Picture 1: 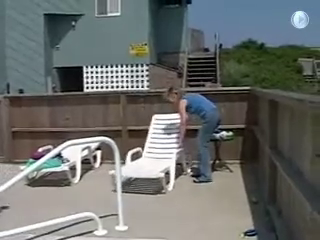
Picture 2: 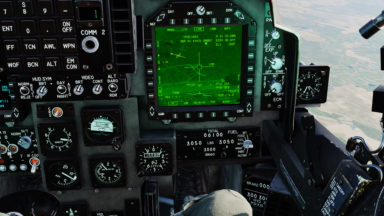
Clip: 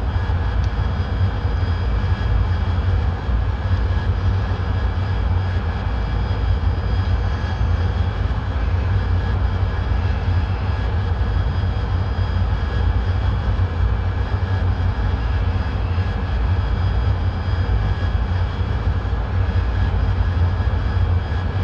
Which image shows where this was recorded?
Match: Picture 2